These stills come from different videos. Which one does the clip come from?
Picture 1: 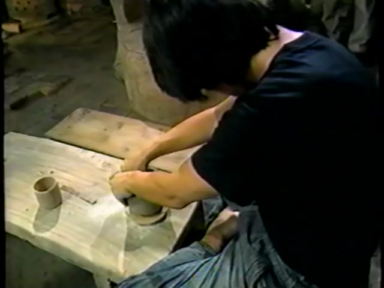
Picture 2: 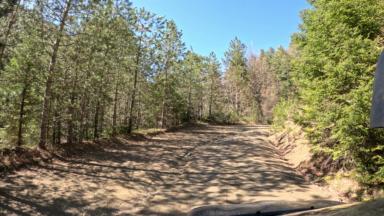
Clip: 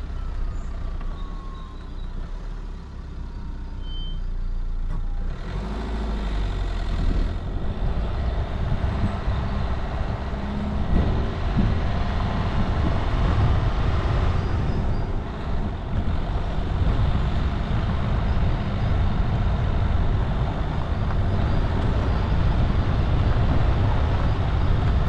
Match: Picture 2